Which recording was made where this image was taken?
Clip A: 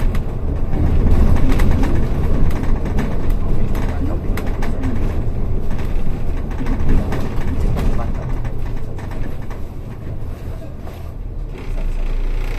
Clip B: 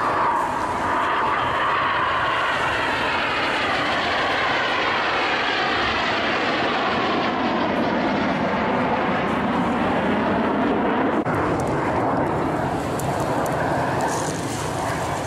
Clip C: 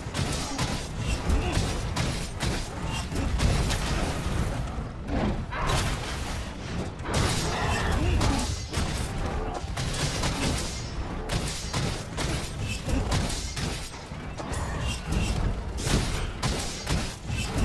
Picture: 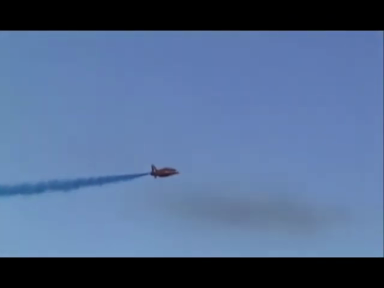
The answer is B